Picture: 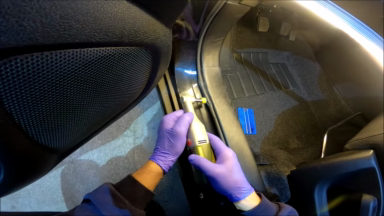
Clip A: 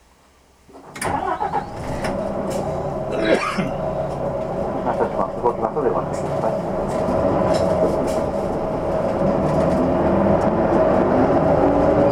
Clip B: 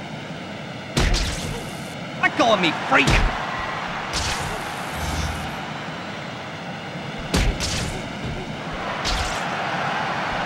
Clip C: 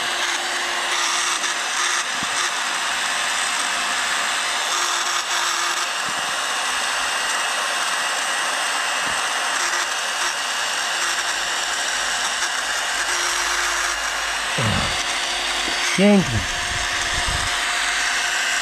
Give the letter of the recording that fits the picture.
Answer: C